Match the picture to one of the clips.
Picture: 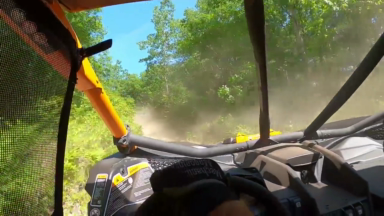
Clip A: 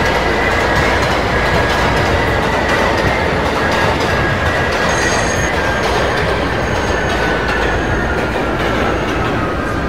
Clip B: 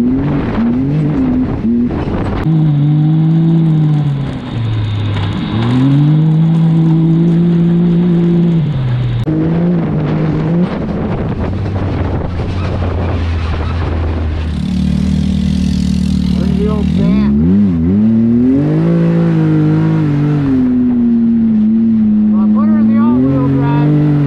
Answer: B